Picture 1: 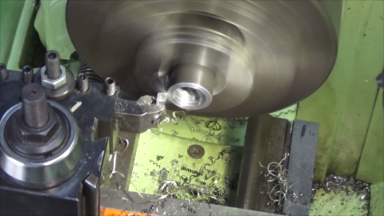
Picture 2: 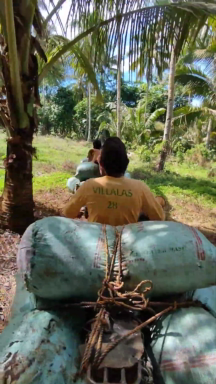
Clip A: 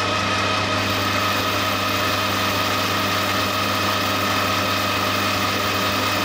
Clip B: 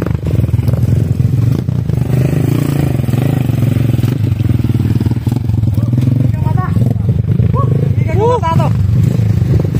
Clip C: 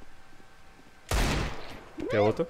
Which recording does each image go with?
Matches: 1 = A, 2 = B